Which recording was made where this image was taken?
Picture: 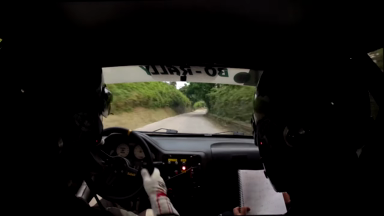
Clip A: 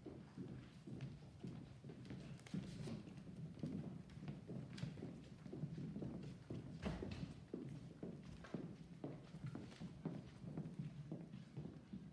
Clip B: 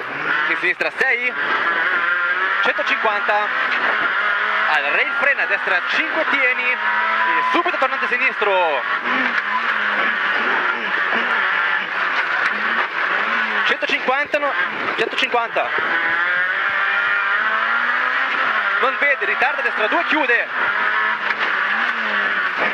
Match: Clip B